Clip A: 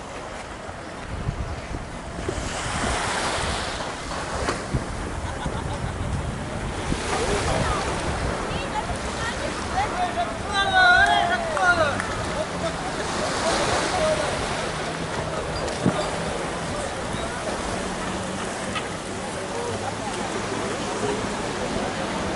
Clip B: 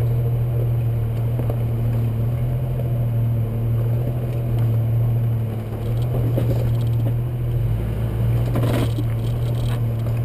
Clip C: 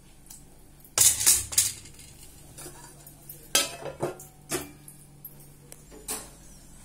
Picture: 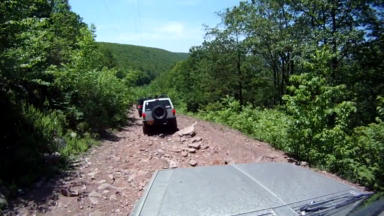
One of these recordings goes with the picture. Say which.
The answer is B